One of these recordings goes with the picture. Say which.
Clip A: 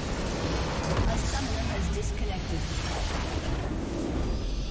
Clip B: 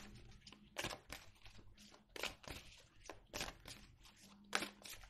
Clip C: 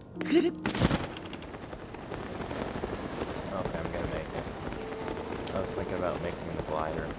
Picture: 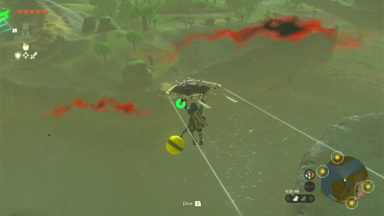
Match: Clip C